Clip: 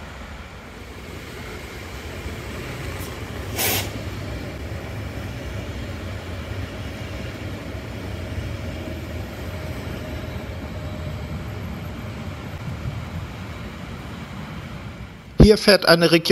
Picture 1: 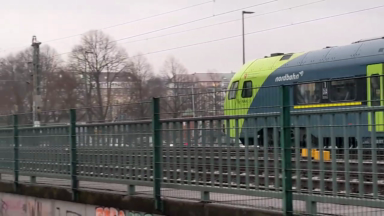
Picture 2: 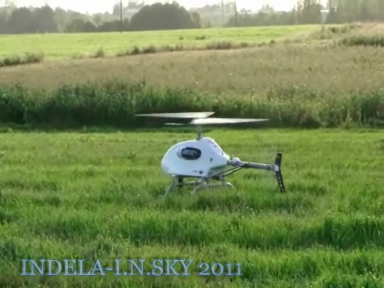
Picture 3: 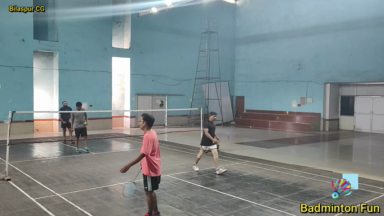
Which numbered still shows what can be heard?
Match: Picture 1